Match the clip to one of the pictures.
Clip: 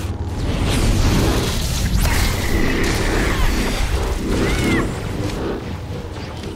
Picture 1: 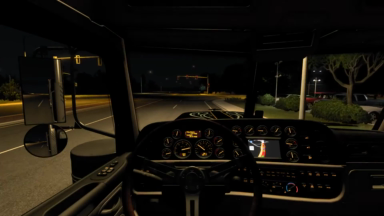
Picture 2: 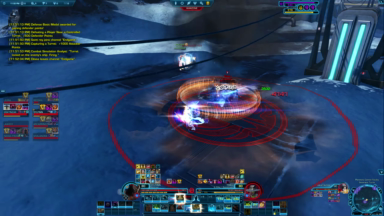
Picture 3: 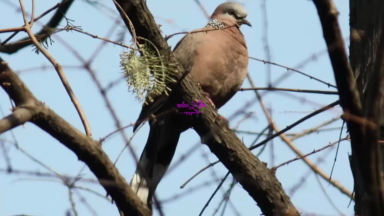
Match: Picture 2